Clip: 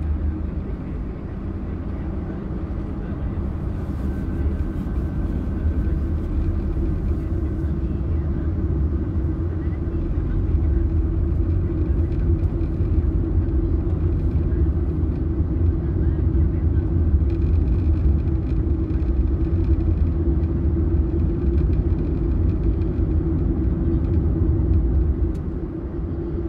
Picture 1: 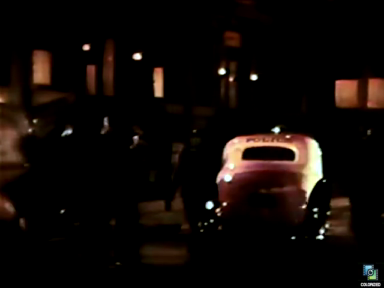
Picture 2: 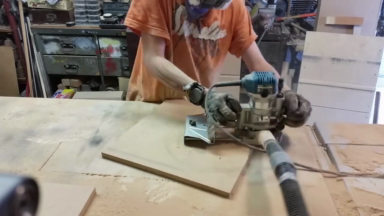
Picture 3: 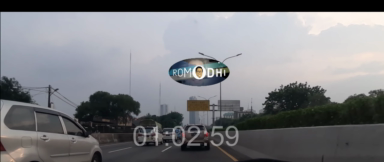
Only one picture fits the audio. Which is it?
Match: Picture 3